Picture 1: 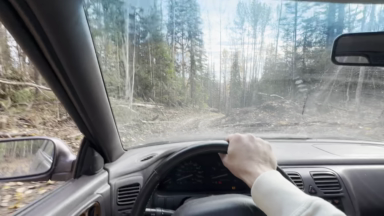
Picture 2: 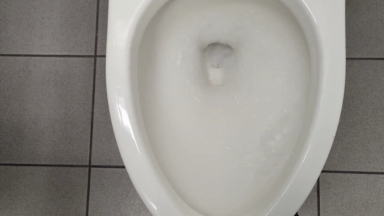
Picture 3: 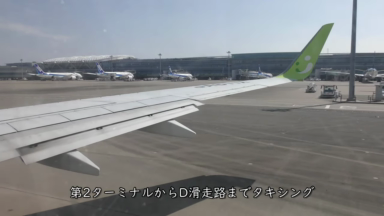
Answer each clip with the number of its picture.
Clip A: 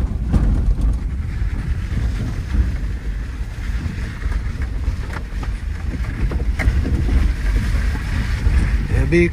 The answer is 1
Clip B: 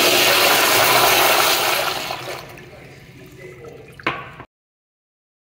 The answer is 2